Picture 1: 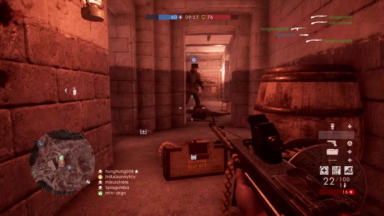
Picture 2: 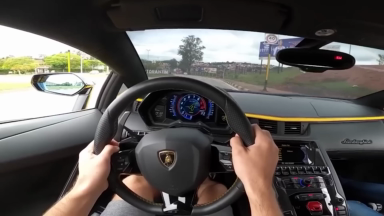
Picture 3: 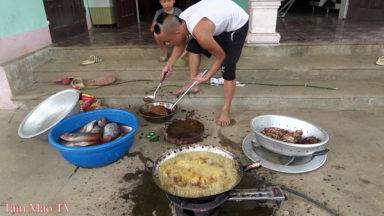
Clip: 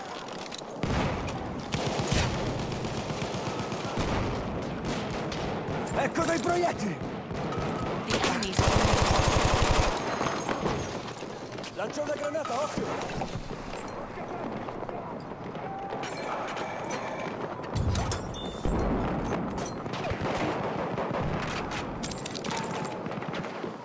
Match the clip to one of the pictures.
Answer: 1